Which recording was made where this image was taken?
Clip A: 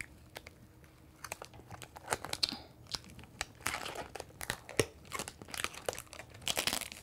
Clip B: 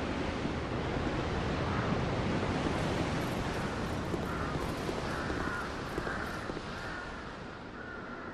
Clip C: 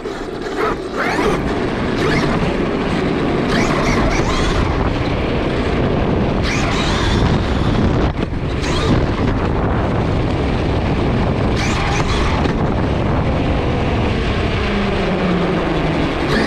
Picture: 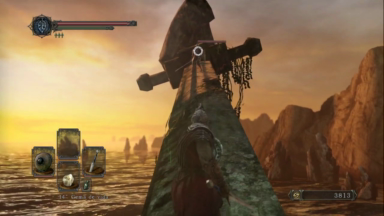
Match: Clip B